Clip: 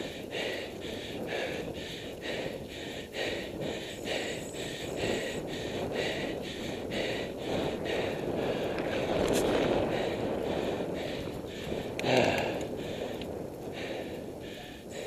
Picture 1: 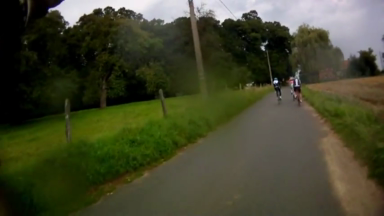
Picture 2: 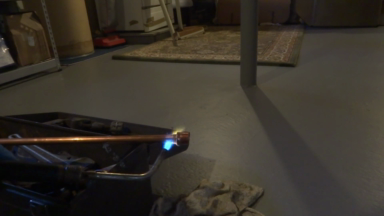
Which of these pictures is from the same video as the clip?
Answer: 1